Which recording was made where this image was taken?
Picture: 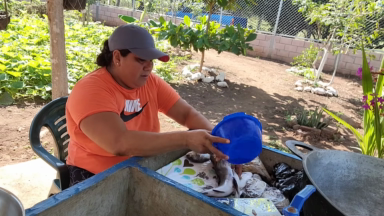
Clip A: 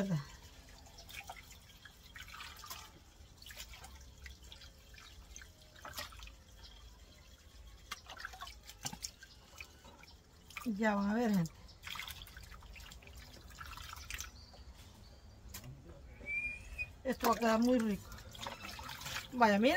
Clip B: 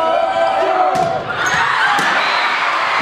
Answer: A